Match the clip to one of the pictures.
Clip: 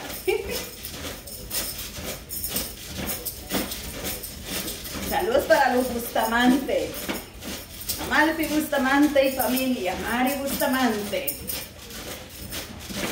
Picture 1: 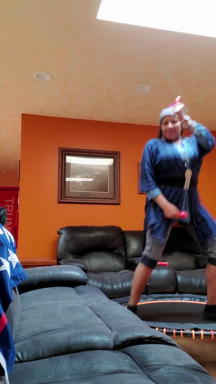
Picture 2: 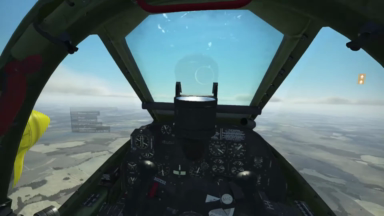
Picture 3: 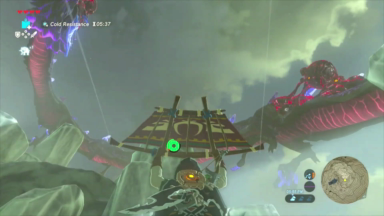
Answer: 1